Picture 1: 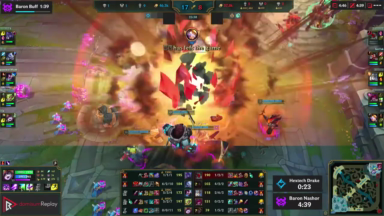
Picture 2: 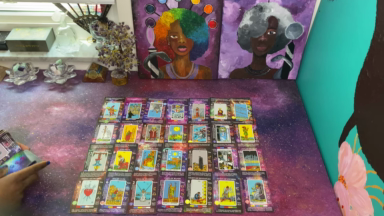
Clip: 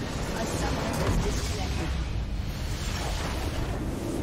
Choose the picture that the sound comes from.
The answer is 1